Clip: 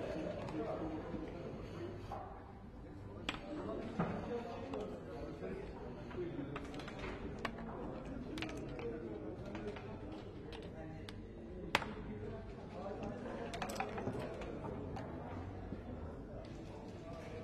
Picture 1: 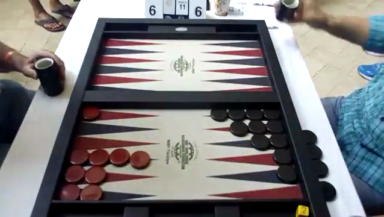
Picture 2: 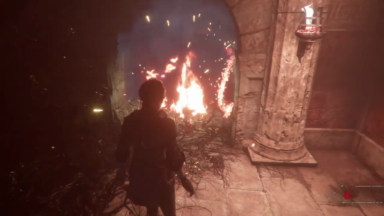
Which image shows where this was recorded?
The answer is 1